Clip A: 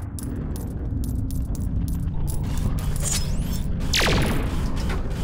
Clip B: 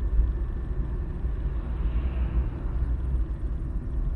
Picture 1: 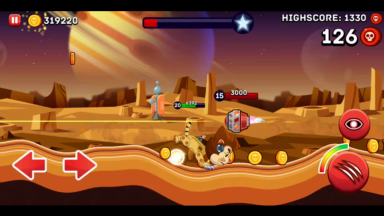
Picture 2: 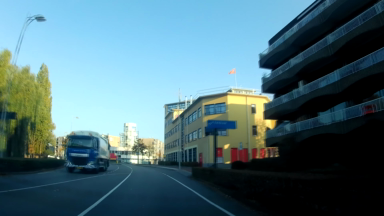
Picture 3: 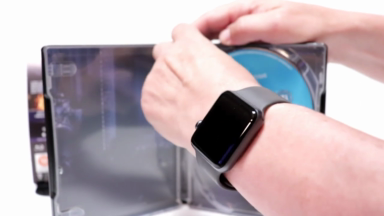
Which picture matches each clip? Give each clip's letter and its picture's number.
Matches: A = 1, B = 2